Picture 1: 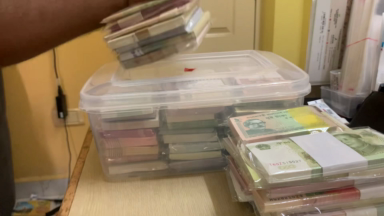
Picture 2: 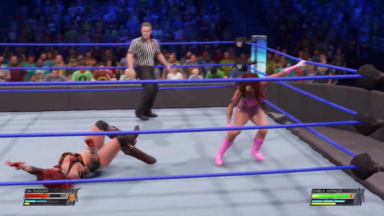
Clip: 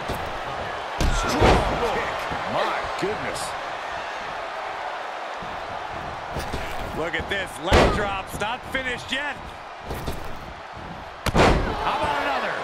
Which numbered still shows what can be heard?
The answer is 2